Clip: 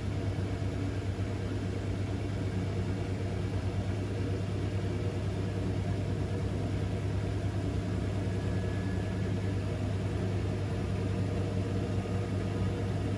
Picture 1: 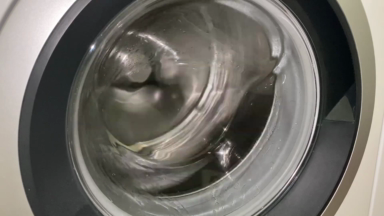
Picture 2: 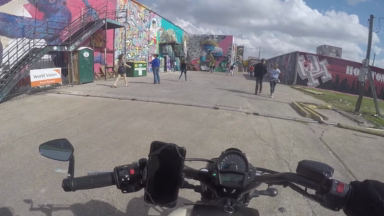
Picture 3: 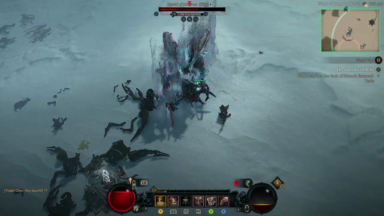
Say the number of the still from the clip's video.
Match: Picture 1